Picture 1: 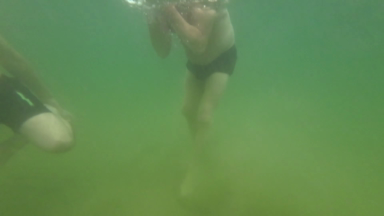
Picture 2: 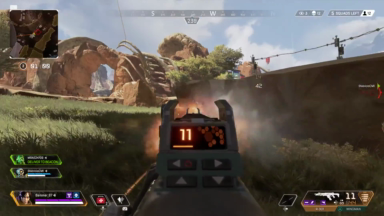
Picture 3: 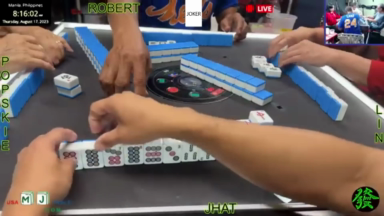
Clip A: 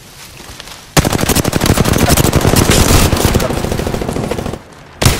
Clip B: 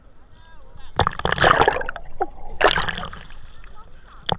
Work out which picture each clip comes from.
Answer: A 2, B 1